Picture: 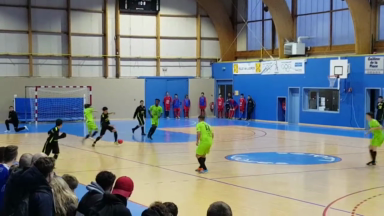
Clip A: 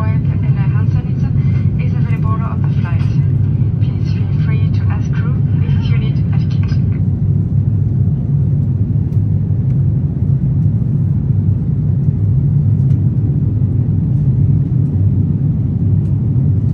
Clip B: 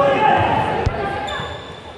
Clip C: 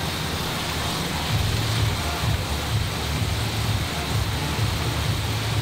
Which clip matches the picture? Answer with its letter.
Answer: B